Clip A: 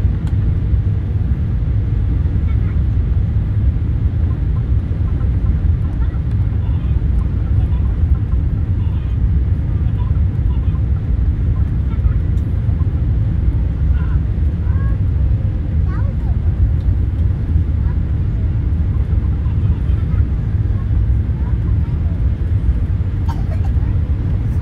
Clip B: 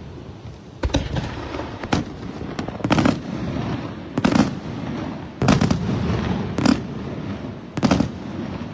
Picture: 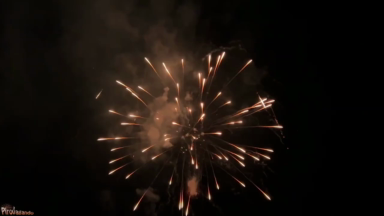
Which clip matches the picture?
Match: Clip B